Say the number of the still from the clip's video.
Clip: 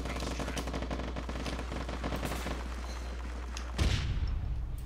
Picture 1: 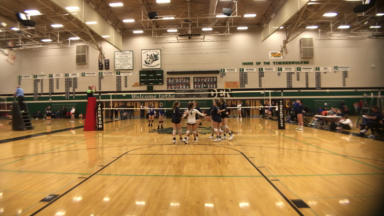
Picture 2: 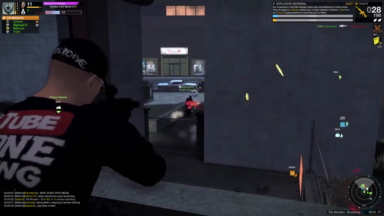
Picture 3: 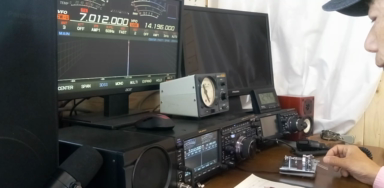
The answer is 2